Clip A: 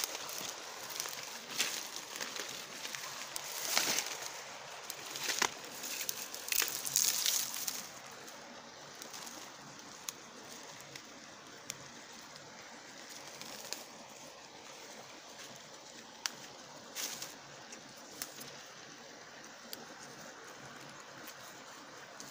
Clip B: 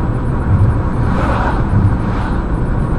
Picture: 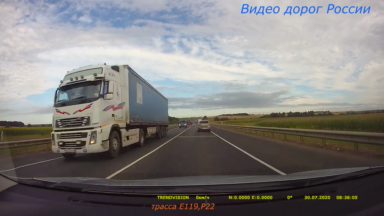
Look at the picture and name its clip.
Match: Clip B